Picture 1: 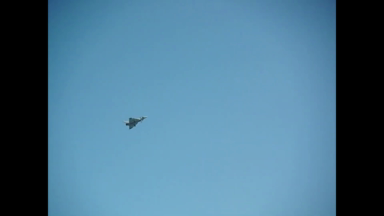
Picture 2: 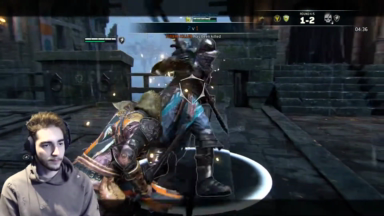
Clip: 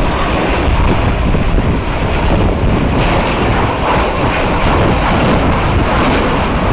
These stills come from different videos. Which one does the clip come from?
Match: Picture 1